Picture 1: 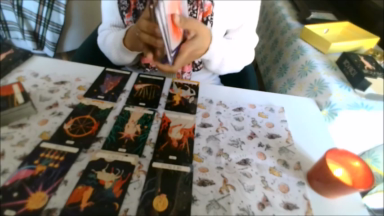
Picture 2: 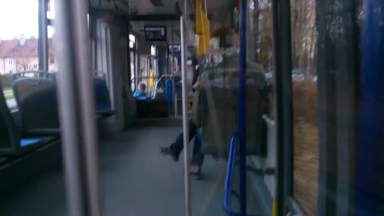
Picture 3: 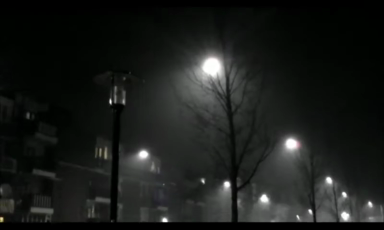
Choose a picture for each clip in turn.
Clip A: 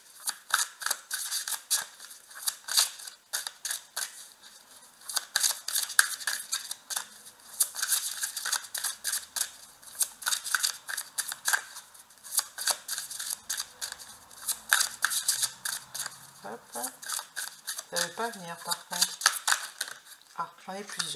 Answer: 1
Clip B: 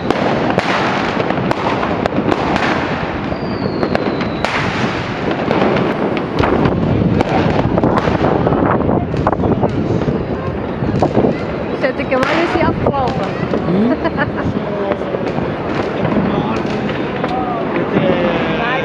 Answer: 3